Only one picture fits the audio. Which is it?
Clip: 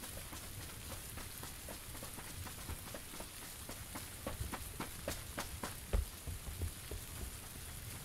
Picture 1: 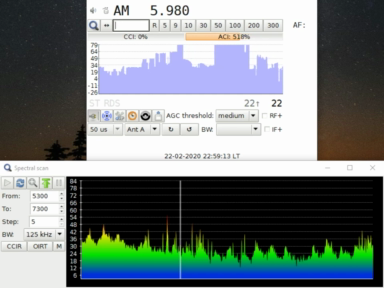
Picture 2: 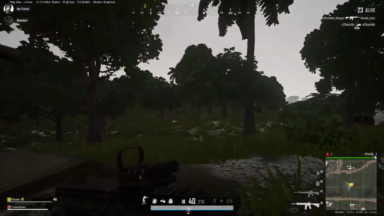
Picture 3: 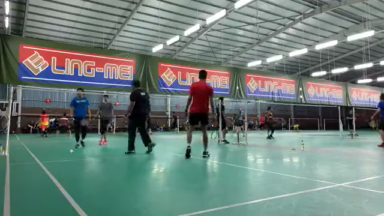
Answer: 2